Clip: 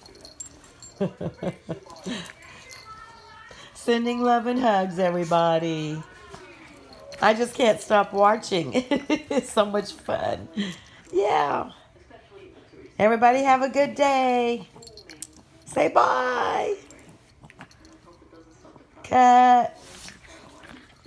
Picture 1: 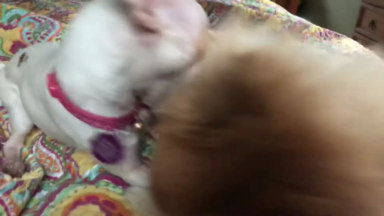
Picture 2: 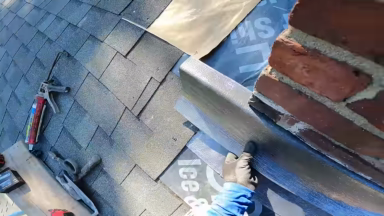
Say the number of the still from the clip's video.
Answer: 1